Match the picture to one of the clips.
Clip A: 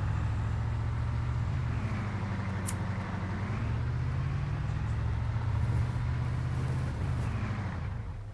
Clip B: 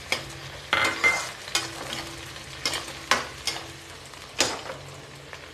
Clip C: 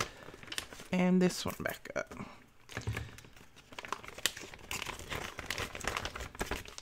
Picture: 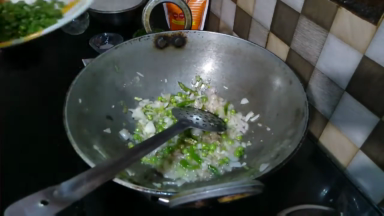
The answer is B